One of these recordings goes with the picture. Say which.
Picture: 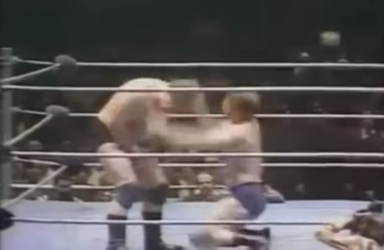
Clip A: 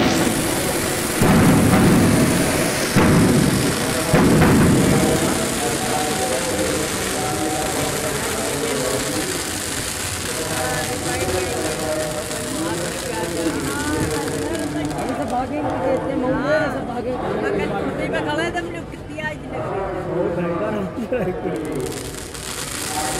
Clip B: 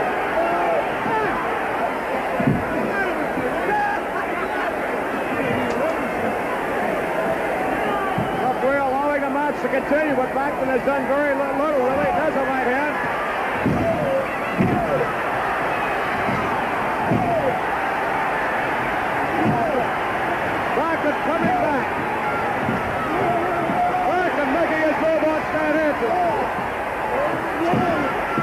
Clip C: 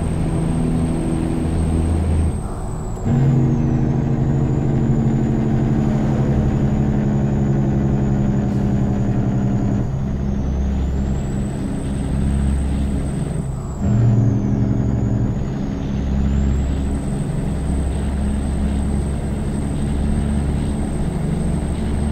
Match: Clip B